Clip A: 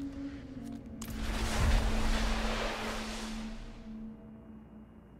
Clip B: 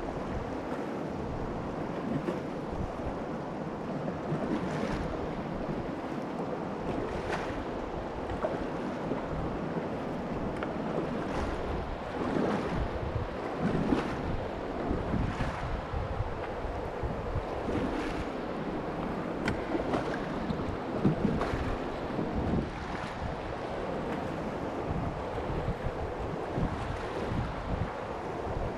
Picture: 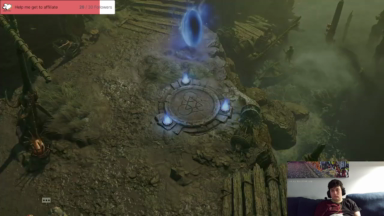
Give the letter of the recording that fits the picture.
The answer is A